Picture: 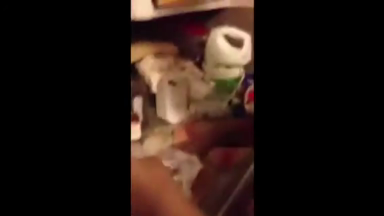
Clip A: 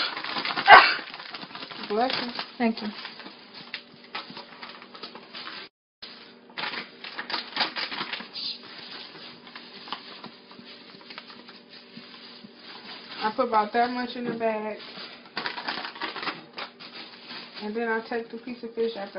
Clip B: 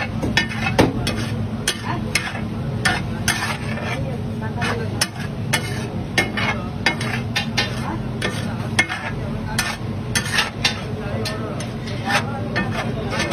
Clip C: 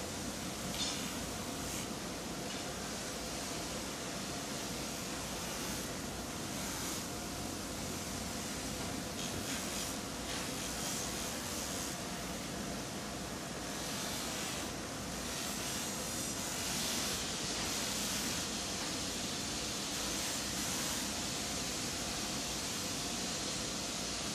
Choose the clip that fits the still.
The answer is A